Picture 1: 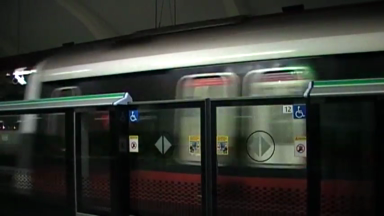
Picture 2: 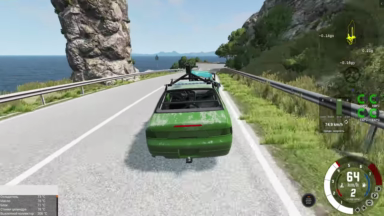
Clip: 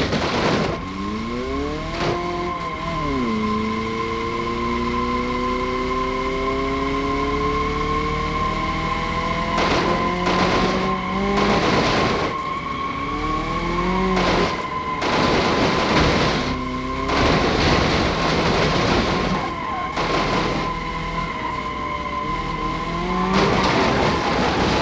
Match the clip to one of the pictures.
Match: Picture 2